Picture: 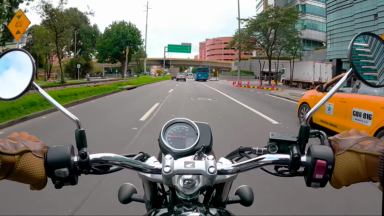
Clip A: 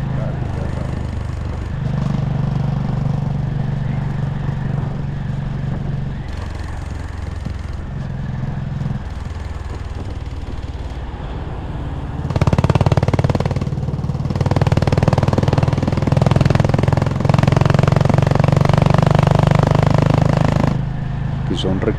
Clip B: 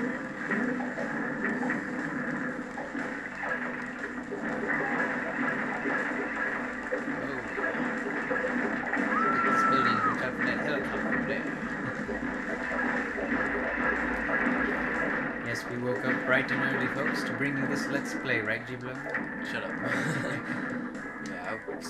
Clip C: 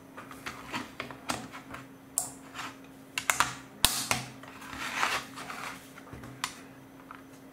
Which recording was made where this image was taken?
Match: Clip A